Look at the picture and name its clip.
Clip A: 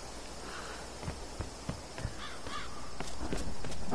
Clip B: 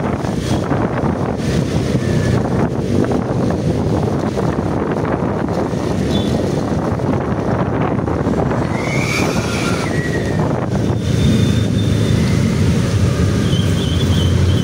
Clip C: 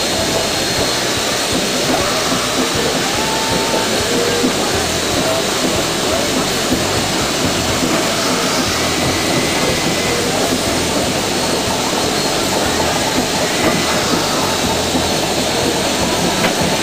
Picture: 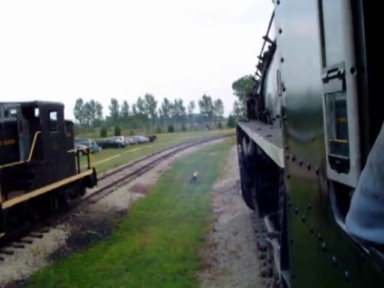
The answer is C